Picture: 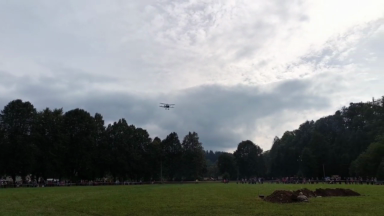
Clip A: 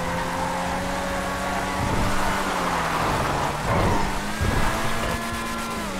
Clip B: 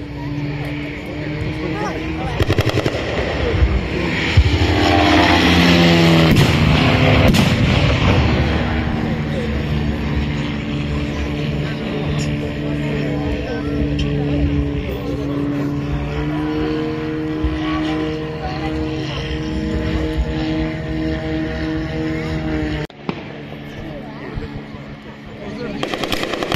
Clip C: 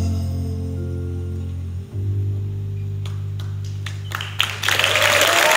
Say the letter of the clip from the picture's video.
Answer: B